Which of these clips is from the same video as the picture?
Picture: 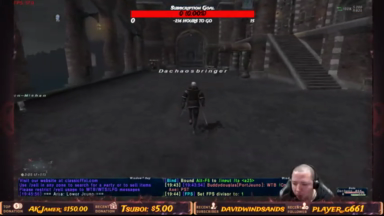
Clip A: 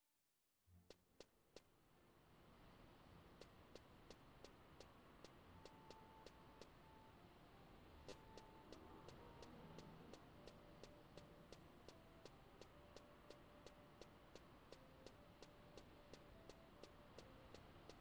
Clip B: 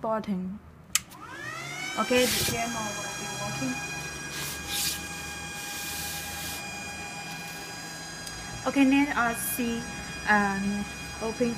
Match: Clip A